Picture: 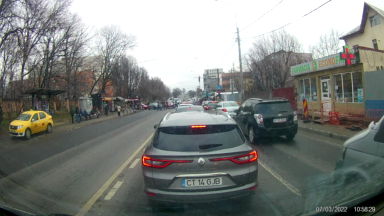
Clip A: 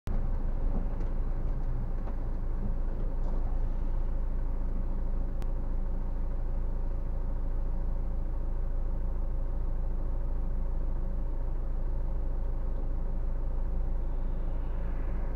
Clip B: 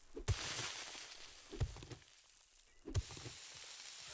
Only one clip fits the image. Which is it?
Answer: A